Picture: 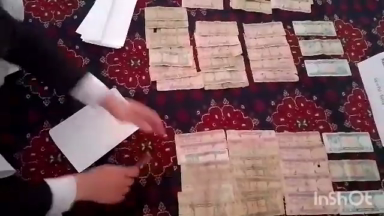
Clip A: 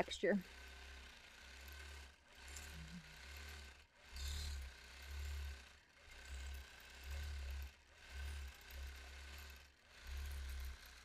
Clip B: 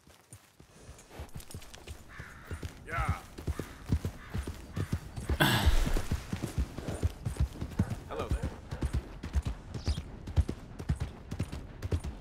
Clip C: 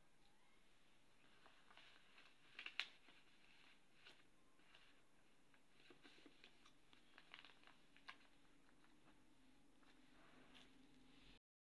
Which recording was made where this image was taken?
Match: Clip C